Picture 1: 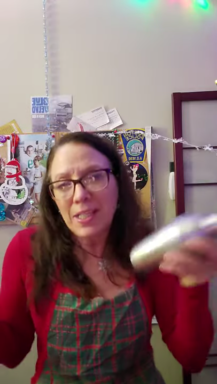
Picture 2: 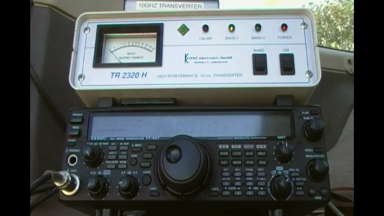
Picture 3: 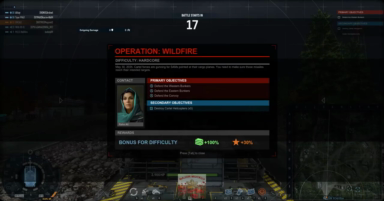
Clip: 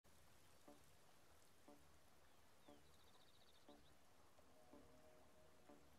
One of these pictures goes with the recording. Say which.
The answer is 3